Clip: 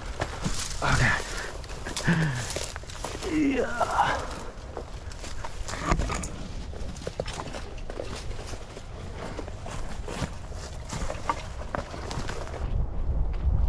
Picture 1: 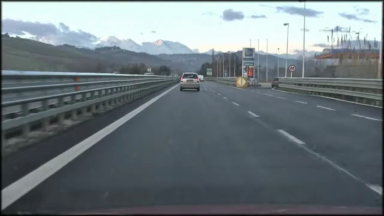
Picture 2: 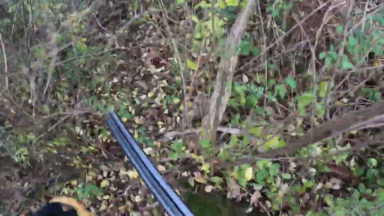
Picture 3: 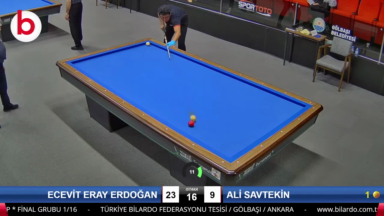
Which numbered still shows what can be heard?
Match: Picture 2